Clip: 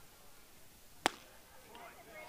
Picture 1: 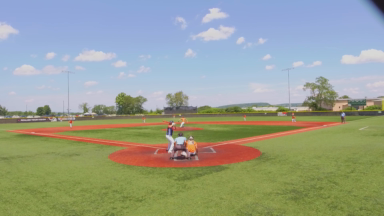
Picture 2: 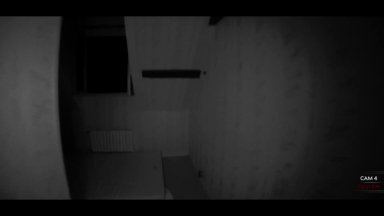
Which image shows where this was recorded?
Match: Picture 1